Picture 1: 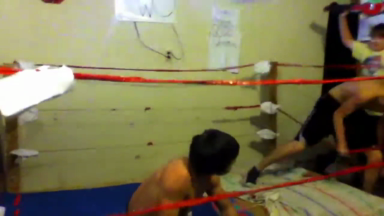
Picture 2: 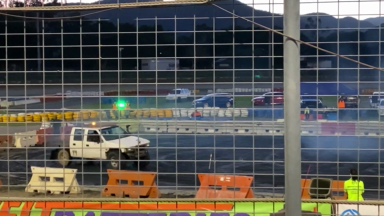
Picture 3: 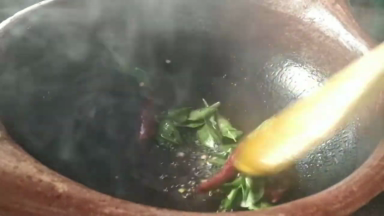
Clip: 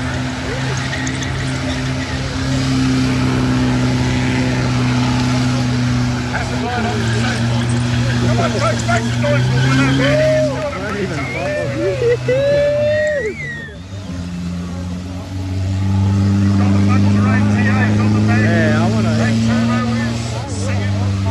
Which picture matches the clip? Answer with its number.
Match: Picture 2